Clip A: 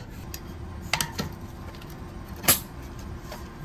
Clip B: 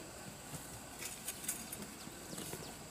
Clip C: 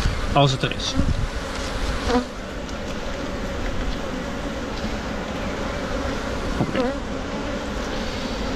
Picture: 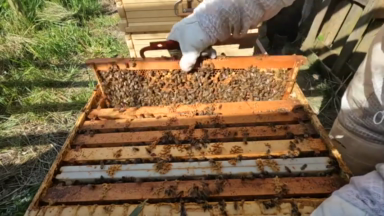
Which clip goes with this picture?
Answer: C